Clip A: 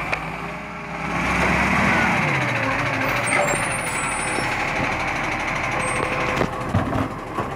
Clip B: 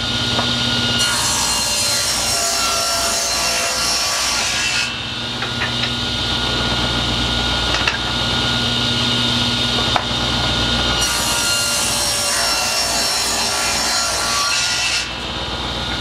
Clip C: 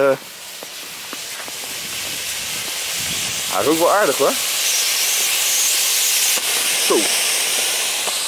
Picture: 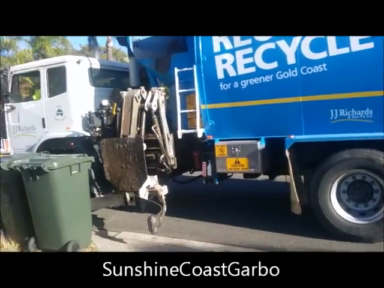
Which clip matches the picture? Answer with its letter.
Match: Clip A